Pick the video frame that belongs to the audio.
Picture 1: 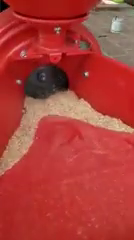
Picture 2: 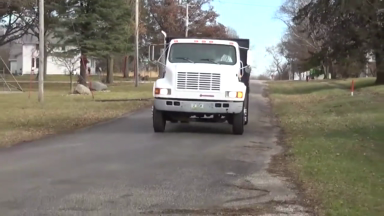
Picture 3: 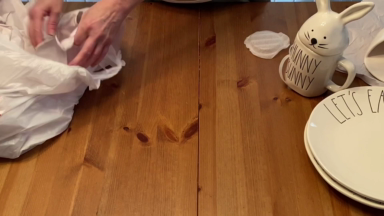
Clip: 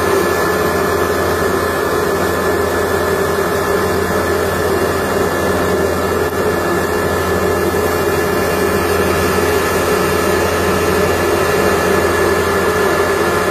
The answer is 1